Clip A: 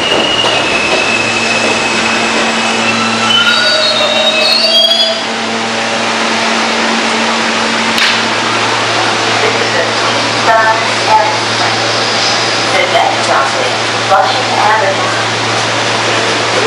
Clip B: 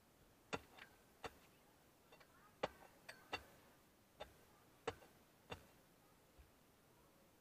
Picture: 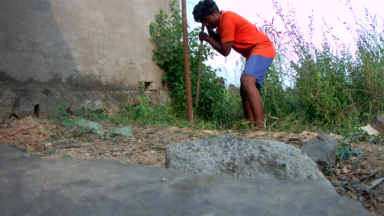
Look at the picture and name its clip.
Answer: B